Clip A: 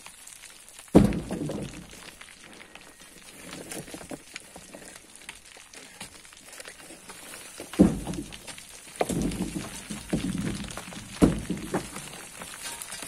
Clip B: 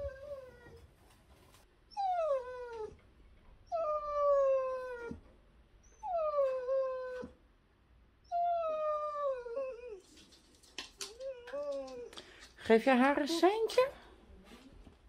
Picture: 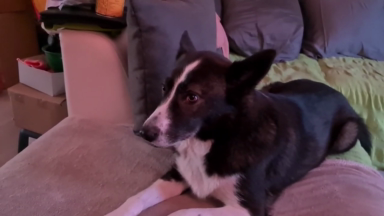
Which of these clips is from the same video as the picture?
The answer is B